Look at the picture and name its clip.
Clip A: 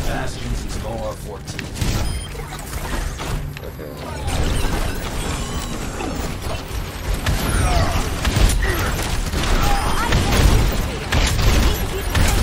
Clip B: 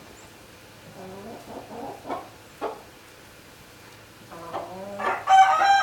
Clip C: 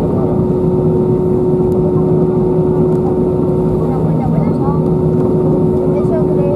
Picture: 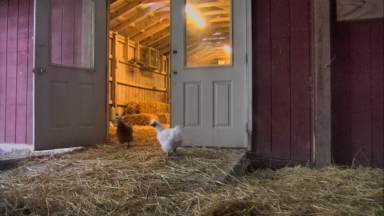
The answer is B